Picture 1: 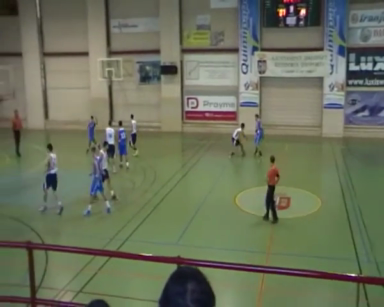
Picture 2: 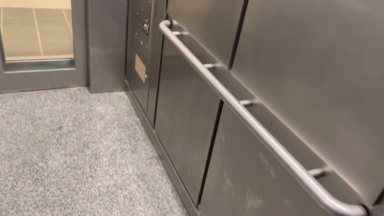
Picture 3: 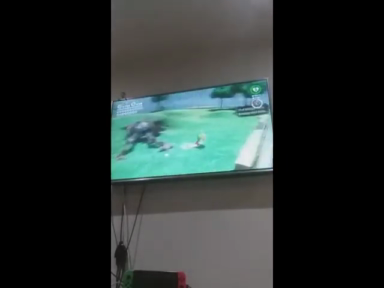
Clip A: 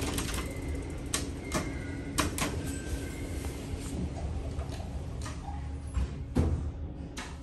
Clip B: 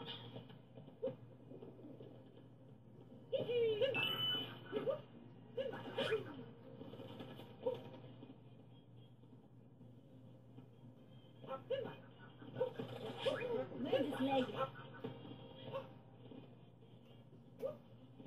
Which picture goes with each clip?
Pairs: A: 2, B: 3